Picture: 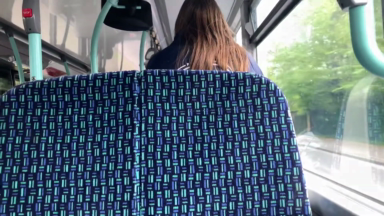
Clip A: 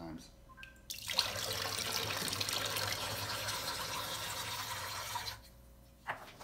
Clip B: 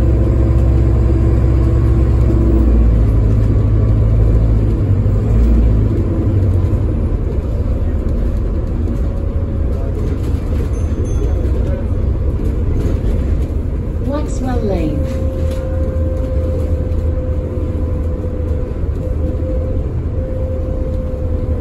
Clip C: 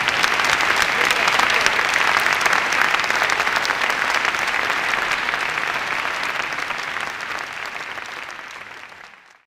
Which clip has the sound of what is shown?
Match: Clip B